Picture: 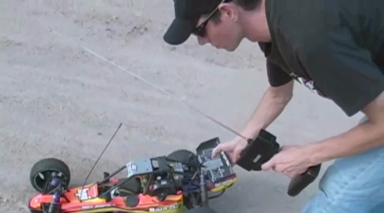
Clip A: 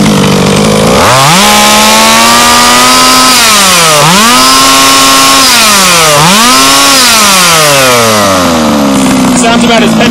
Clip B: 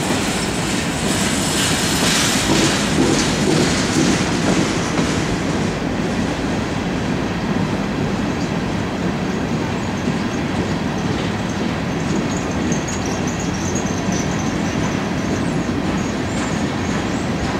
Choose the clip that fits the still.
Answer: A